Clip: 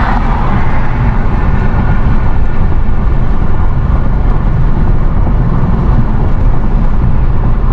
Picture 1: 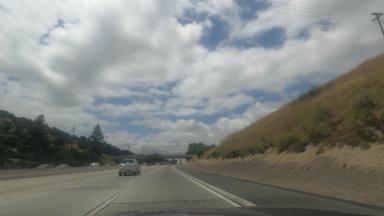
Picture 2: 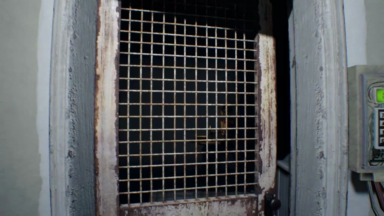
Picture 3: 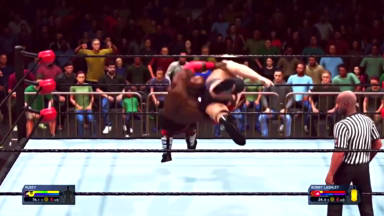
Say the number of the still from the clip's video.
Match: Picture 1